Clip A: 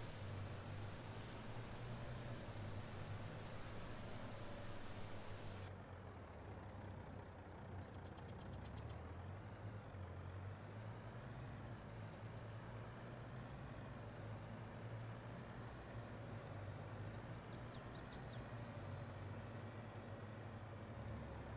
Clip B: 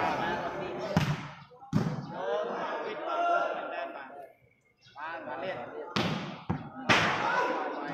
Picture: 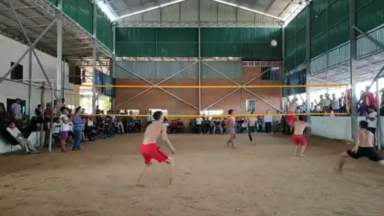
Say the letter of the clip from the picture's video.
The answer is B